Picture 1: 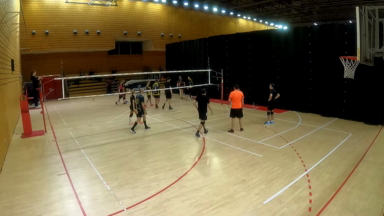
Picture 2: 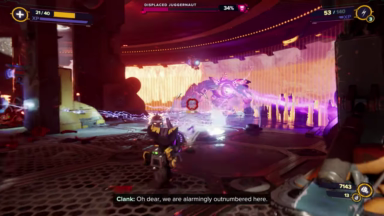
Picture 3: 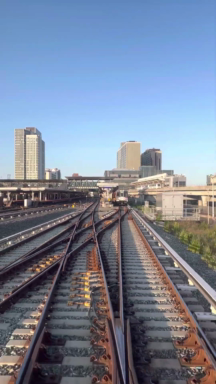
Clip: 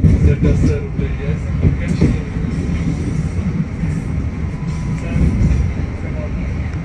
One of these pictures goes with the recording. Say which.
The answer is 3